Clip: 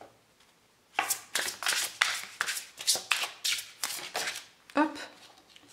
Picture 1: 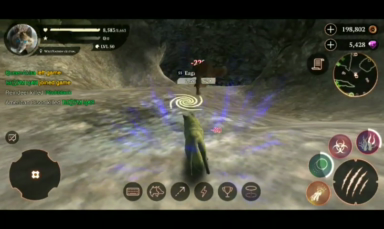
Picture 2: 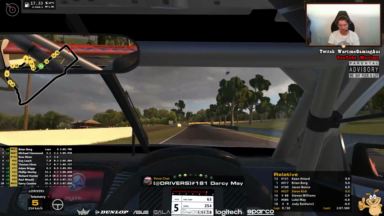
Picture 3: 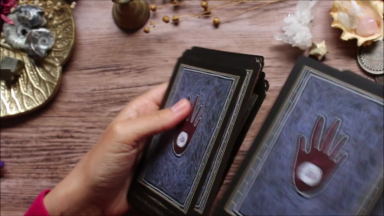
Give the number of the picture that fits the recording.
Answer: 3